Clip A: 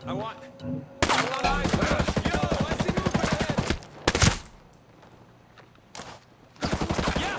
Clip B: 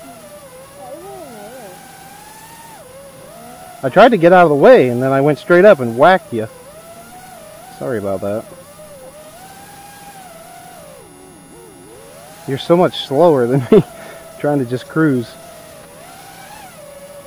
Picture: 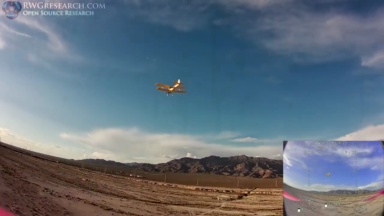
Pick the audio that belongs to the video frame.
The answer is B